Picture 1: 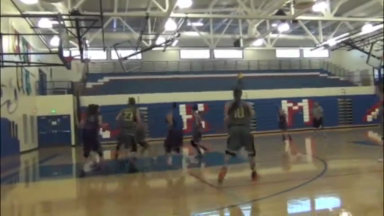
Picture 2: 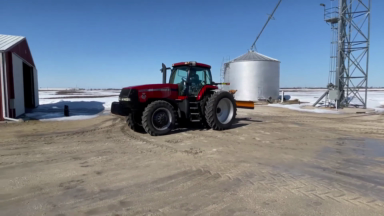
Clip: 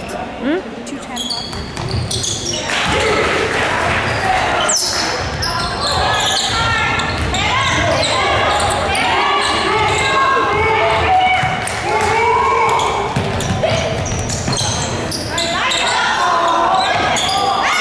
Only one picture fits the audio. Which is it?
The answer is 1